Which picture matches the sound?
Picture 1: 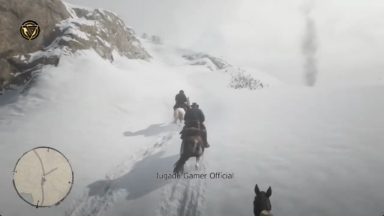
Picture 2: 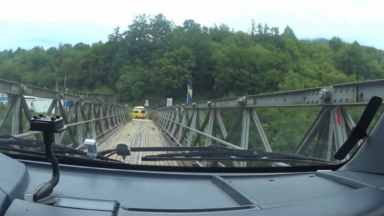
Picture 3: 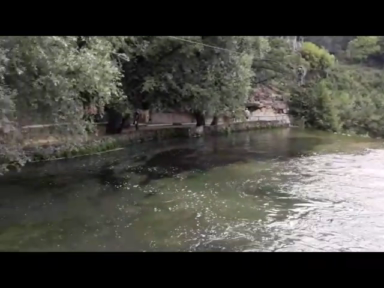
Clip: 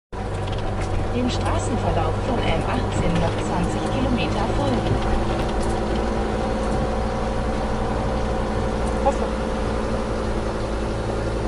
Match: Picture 2